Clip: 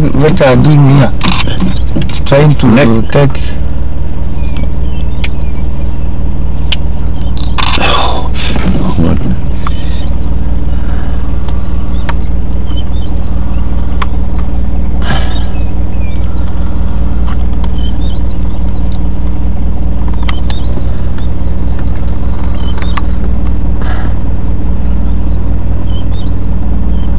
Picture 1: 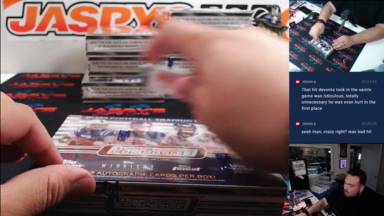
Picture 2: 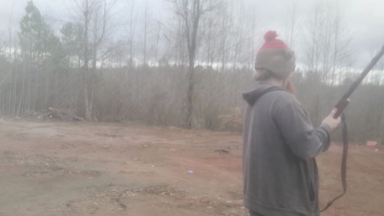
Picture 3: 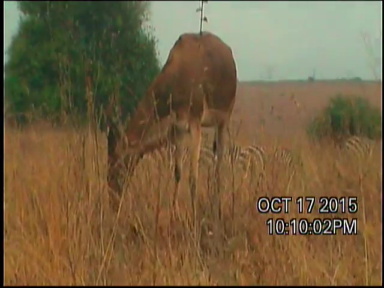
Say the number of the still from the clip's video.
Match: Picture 3